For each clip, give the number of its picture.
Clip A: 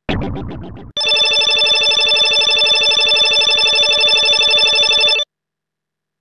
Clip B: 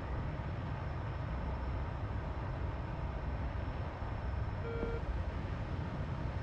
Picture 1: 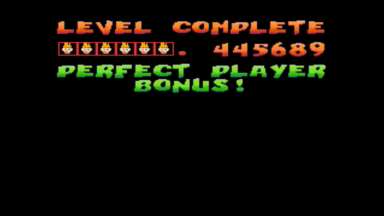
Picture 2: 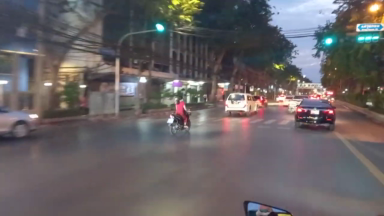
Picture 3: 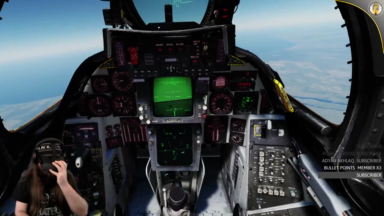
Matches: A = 1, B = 3